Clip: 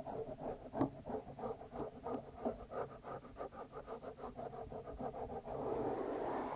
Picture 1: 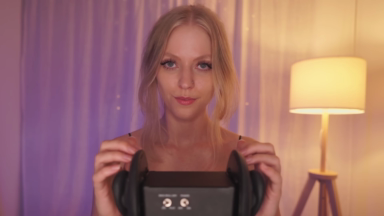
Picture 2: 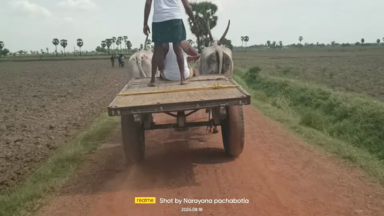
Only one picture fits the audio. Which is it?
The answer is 1